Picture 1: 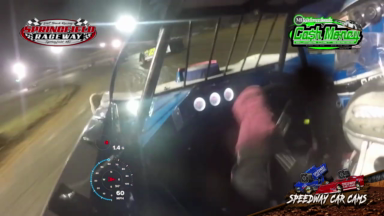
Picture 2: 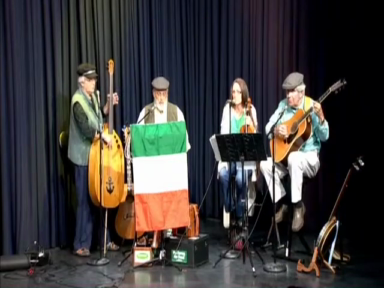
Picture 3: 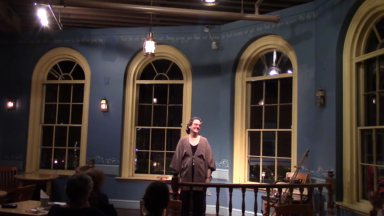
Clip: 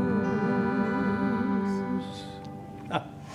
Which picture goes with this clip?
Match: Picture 2